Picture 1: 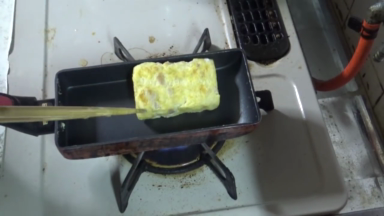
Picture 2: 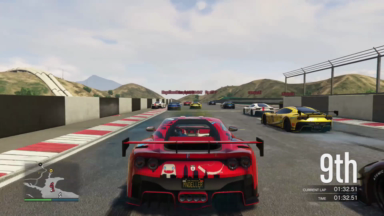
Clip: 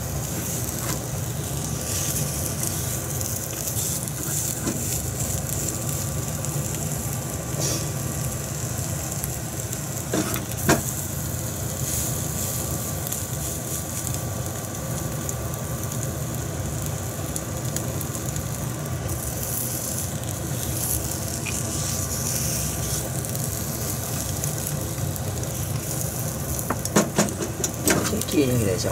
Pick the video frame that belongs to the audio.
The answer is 1